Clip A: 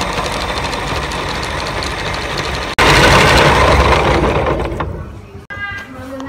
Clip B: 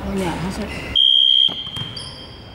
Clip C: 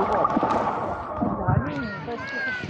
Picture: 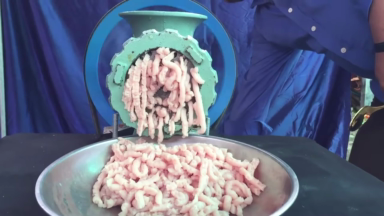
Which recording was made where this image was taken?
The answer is A